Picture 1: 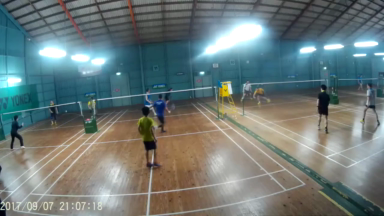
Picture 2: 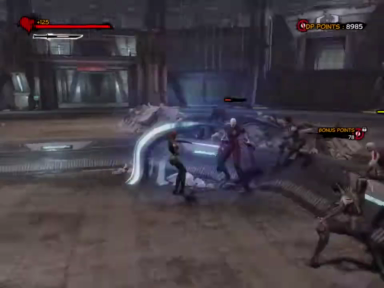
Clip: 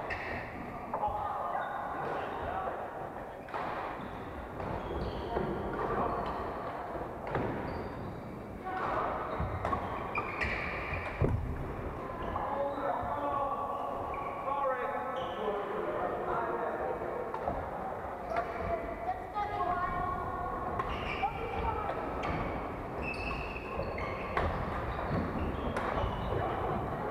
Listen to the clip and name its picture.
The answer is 1